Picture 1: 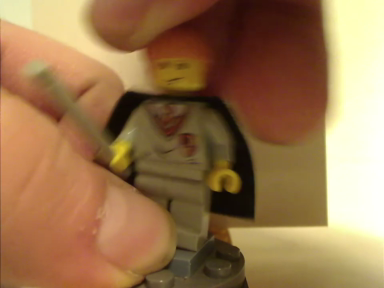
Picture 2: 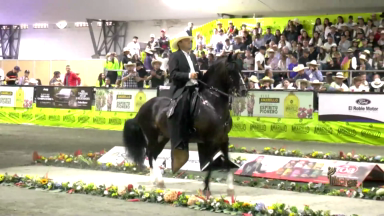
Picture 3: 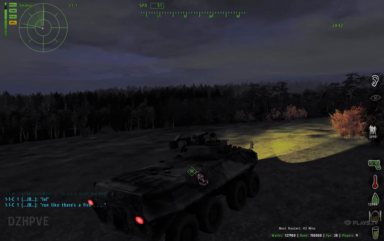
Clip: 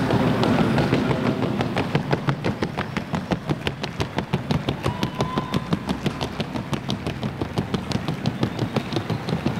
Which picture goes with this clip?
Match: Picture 2